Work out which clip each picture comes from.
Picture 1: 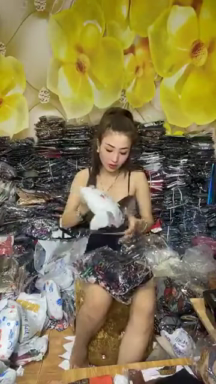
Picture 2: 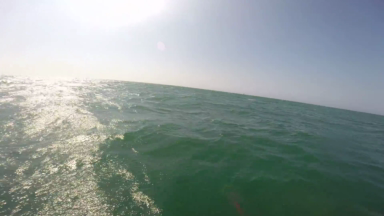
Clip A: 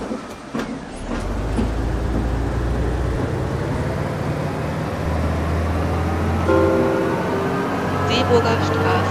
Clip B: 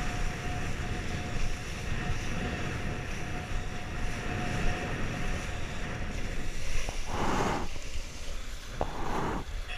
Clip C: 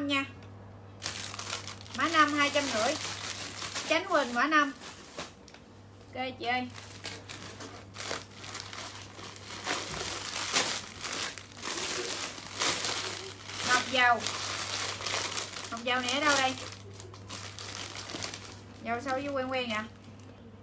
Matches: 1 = C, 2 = B